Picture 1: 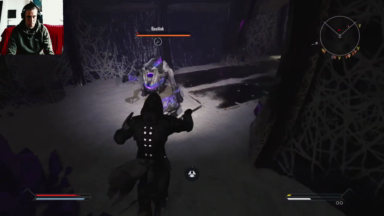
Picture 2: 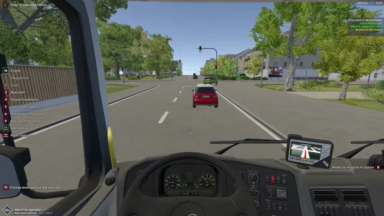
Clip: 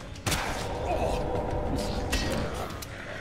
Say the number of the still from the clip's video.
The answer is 1